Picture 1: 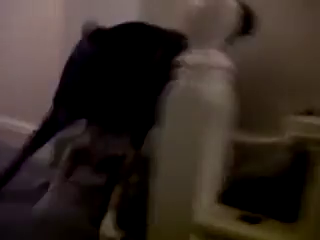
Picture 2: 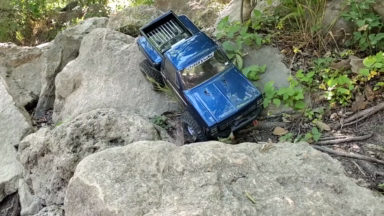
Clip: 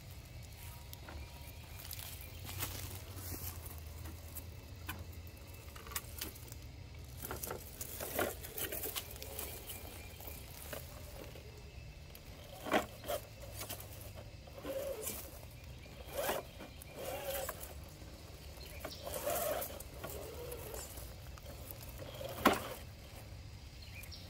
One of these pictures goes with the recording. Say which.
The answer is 2